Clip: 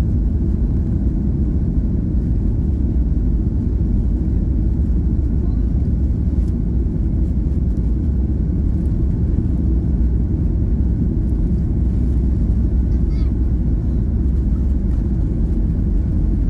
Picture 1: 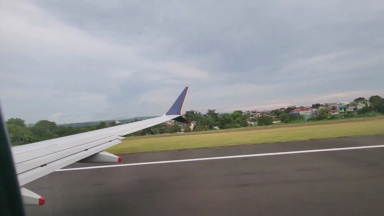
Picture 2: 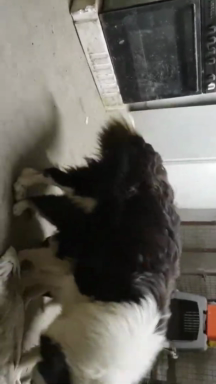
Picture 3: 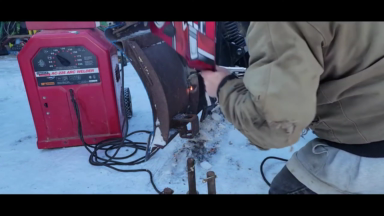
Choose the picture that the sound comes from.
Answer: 1